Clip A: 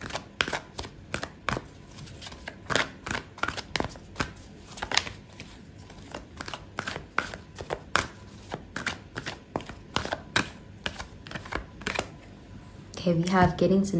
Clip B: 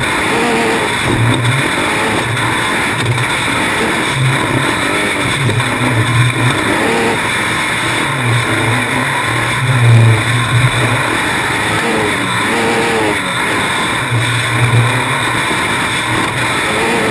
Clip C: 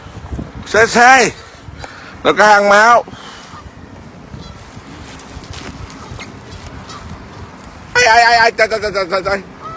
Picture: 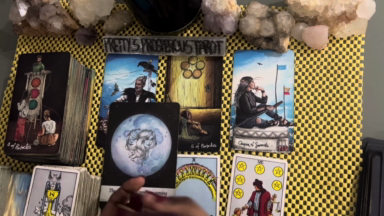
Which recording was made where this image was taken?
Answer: A